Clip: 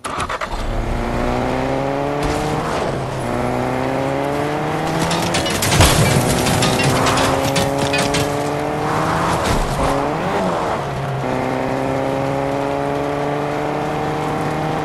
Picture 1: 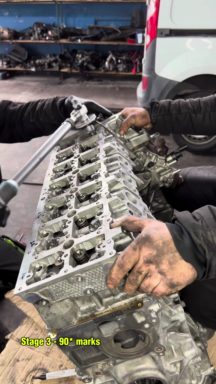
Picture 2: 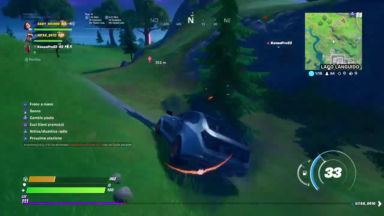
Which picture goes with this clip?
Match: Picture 2